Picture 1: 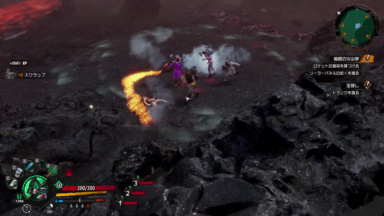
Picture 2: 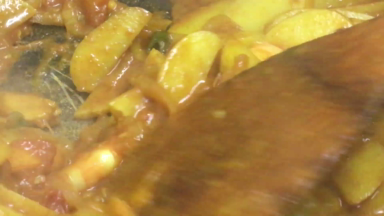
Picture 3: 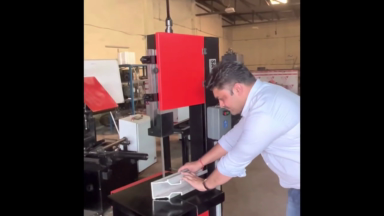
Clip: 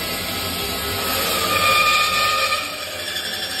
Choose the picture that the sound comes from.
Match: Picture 3